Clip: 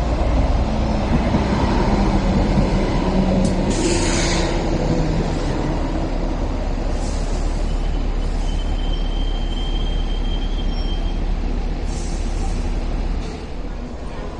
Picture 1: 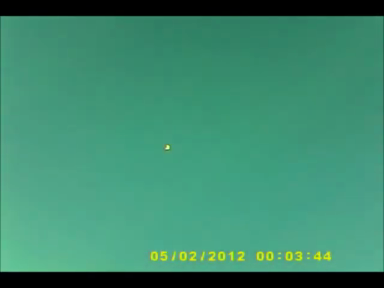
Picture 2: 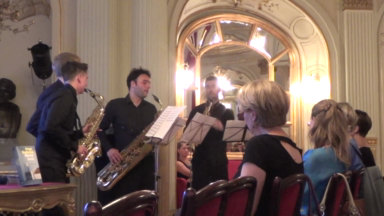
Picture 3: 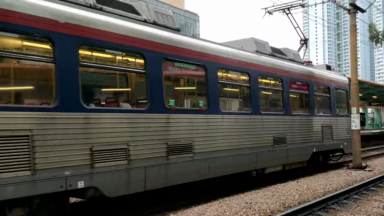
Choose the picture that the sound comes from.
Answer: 3